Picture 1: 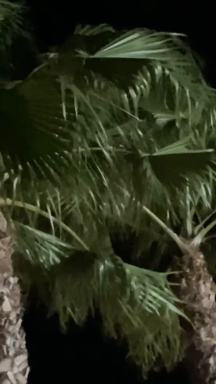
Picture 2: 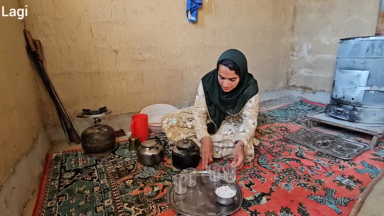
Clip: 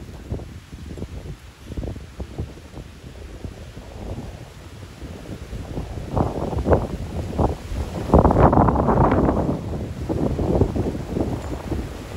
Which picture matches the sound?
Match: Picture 1